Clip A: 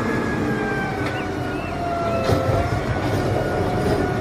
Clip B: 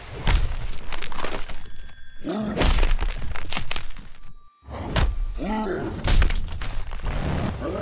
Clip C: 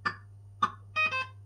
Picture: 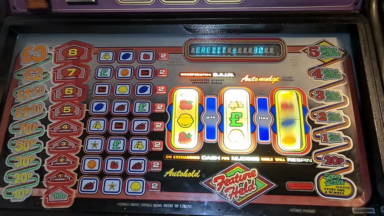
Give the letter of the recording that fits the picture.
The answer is C